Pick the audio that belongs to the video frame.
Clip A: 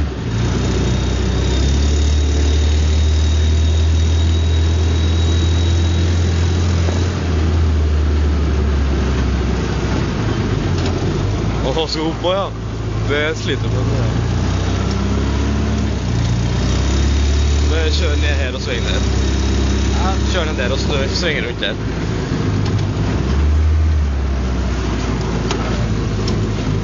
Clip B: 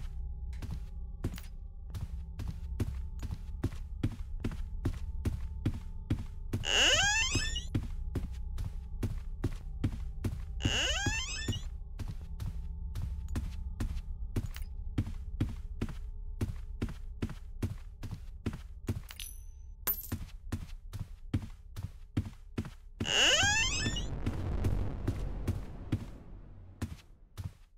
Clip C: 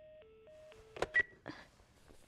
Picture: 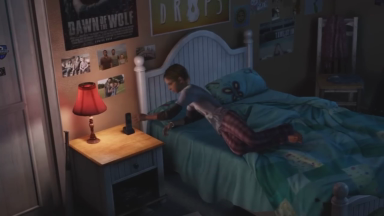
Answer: C